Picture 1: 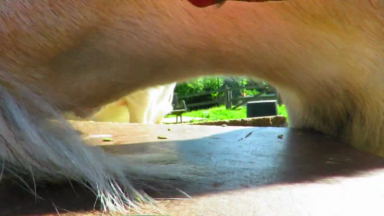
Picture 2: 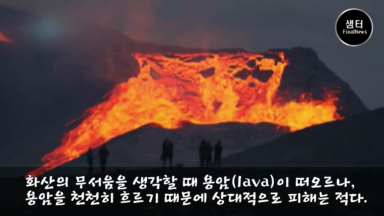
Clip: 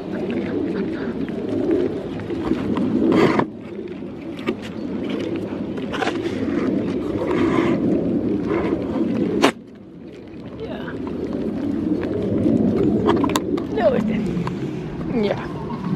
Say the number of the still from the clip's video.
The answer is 1